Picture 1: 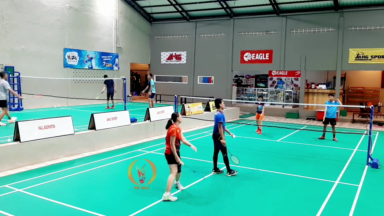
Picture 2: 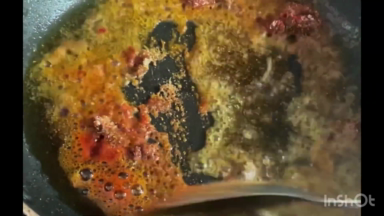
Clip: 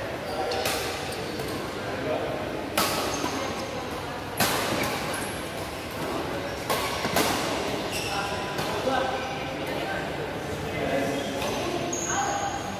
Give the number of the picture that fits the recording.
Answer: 1